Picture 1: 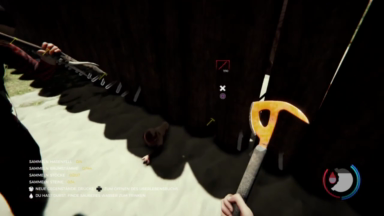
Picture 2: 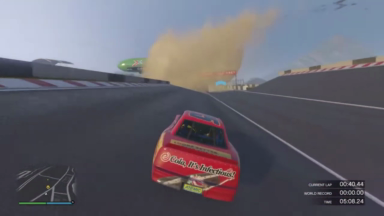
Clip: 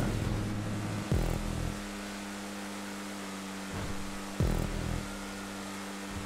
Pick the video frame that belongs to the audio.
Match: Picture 2